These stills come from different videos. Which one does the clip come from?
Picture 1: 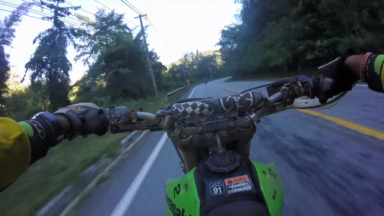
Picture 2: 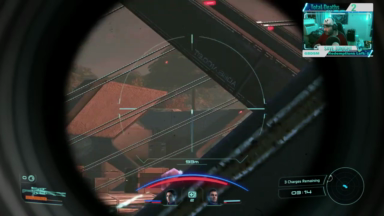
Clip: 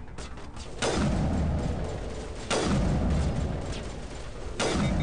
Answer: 2